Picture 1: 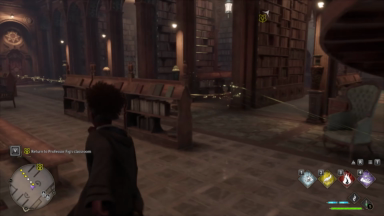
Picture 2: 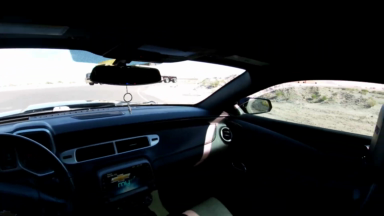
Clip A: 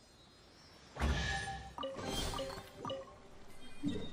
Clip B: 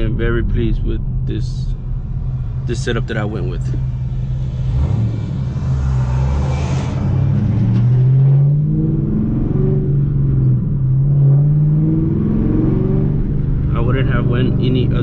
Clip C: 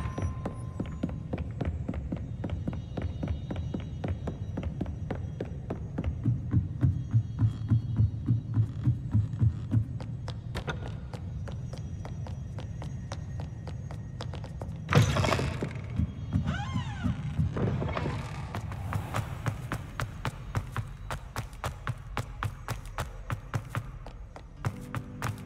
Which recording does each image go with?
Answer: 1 C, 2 B